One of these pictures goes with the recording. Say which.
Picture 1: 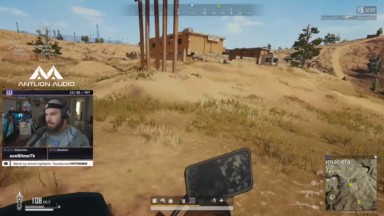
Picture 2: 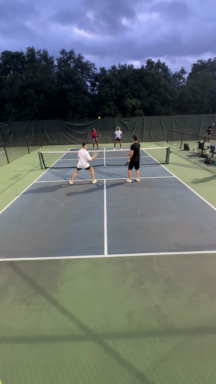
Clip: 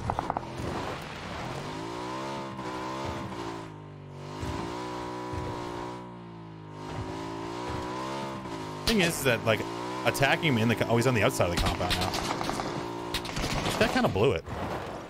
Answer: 1